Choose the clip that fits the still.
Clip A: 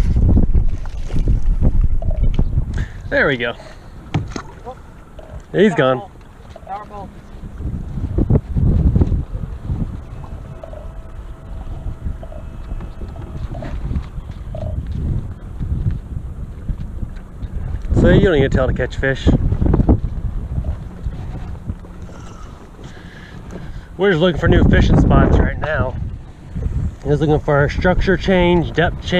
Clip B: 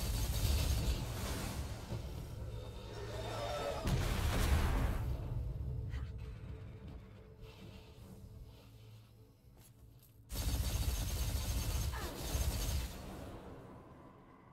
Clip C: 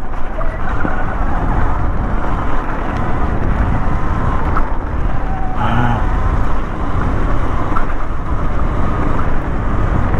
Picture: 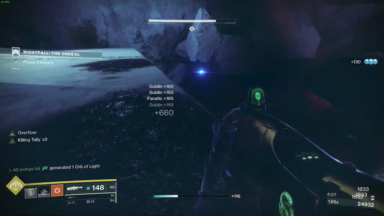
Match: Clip B